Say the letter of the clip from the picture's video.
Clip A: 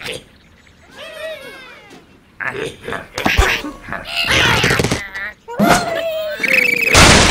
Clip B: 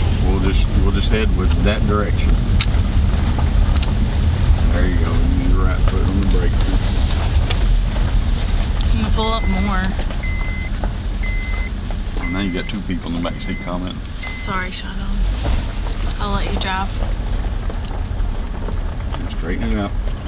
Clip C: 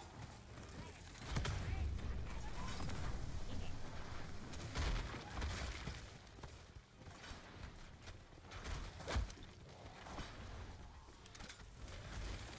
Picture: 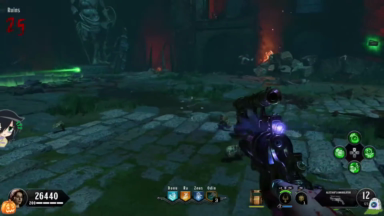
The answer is C